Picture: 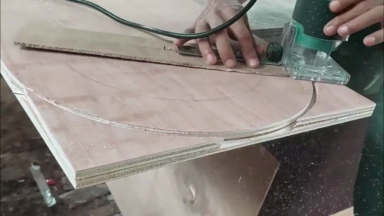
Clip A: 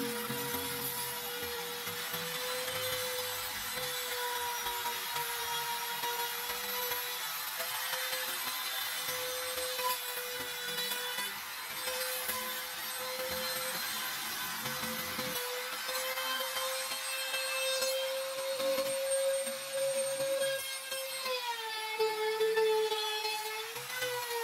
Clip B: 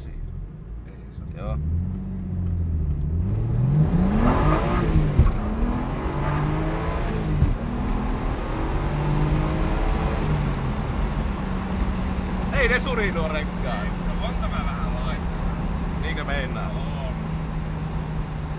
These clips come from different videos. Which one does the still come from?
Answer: A